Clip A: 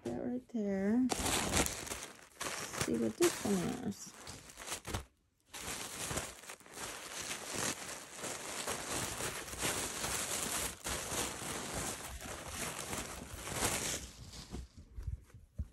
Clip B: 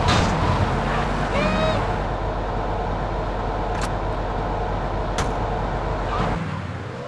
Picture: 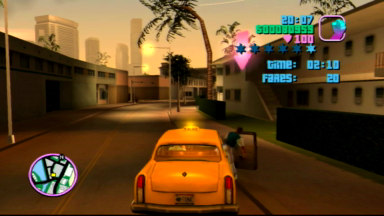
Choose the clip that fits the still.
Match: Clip B